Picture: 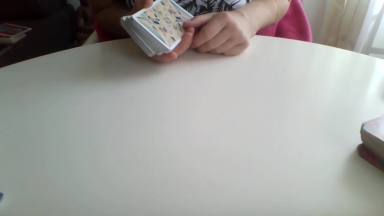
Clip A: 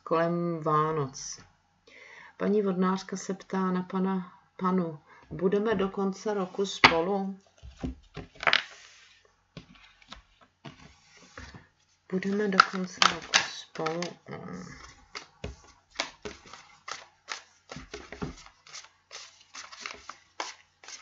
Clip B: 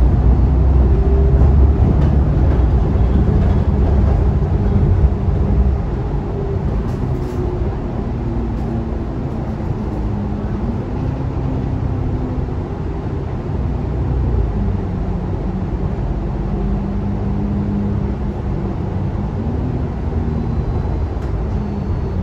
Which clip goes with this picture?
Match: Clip A